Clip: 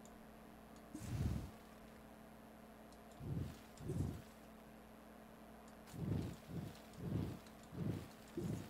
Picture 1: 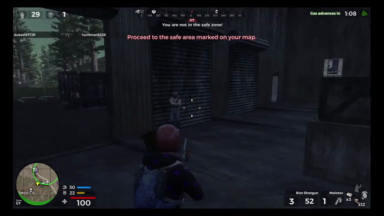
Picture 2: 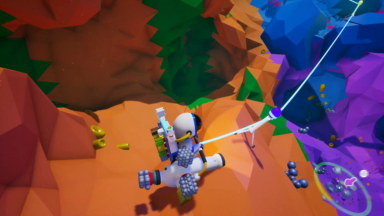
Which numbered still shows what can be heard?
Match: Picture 2